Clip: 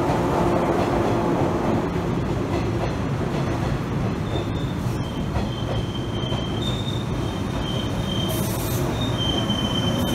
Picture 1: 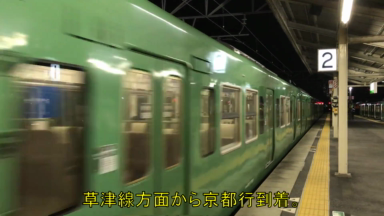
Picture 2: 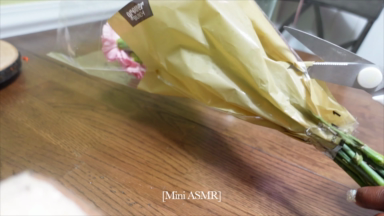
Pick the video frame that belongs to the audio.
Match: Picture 1